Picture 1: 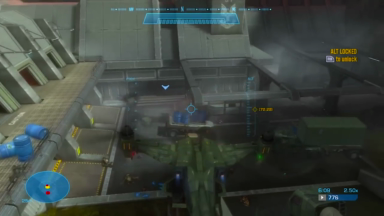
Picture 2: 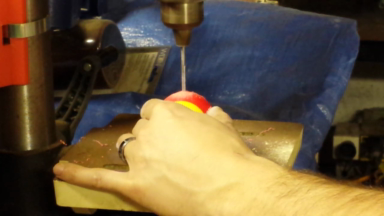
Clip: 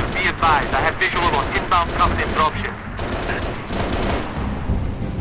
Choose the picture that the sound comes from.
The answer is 1